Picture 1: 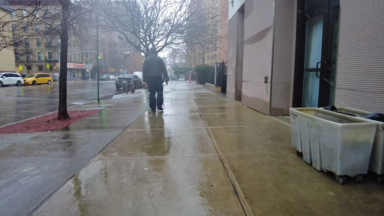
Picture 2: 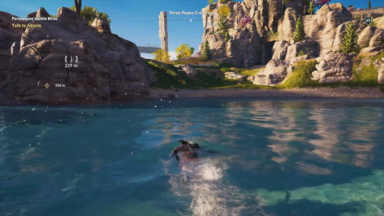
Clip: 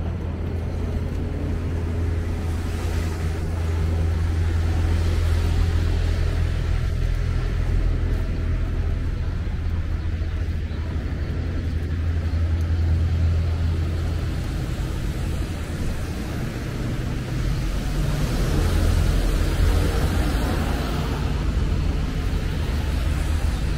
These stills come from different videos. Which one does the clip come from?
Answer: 1